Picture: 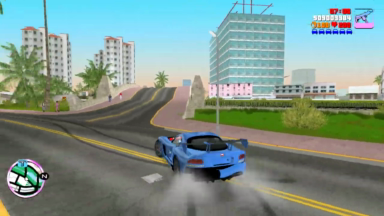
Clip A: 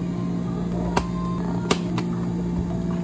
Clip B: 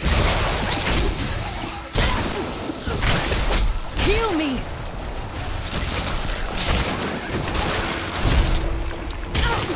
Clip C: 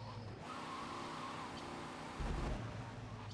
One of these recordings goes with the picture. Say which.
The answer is C